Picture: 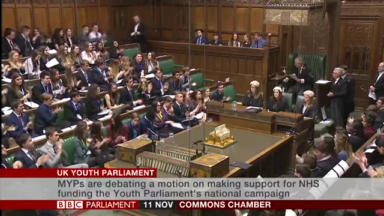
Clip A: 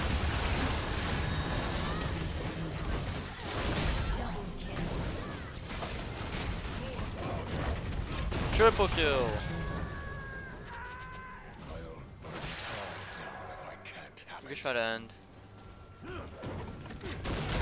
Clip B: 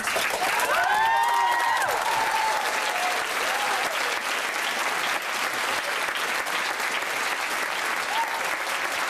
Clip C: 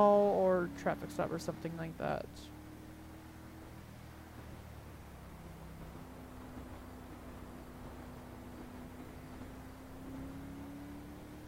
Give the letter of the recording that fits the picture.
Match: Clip B